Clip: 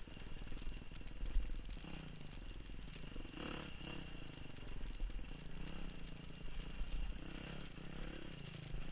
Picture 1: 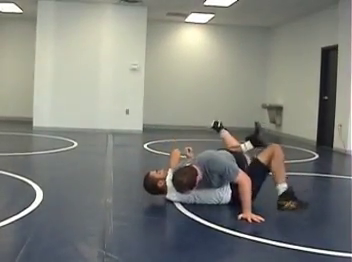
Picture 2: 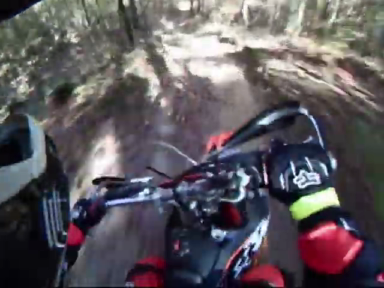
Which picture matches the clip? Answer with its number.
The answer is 2